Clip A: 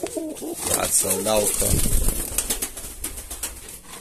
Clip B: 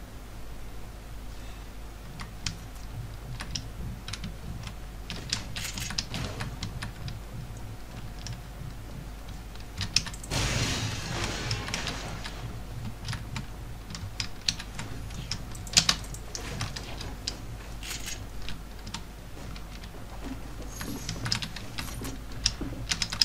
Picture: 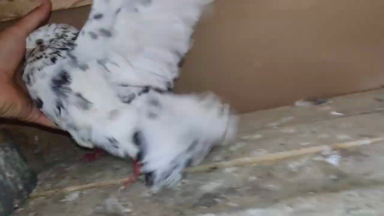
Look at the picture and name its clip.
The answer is A